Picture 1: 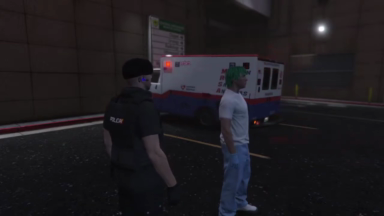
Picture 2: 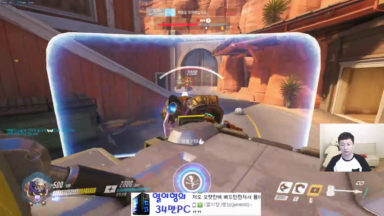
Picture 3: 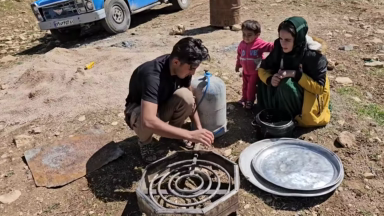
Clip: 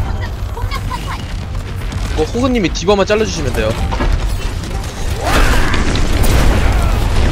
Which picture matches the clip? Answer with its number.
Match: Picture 2